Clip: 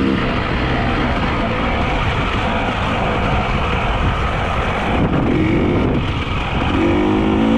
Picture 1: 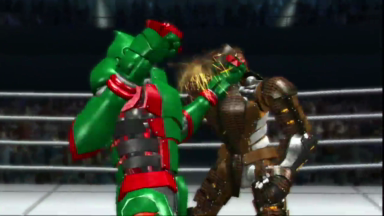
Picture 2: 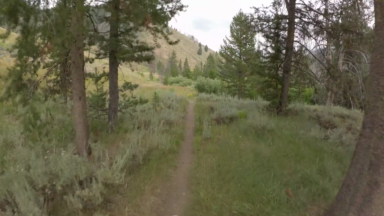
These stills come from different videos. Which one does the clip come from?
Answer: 2